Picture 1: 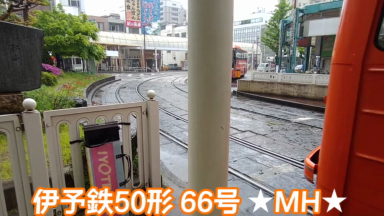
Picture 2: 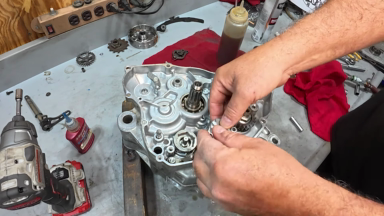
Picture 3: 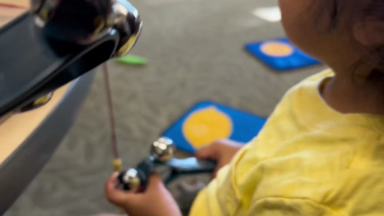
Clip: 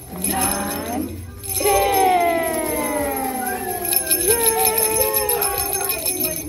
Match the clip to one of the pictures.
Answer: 3